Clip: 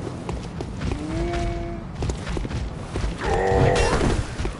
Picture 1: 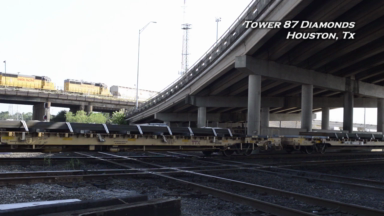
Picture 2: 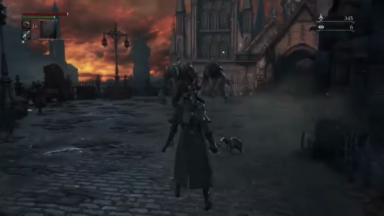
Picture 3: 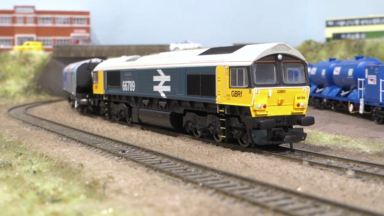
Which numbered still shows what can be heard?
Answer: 2